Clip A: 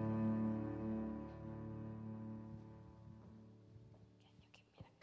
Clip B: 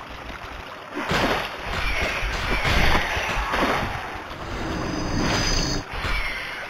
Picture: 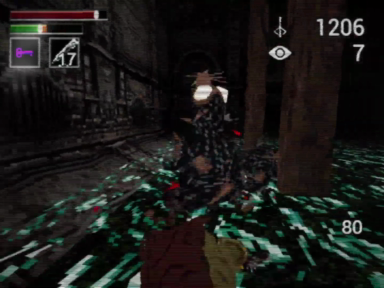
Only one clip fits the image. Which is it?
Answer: B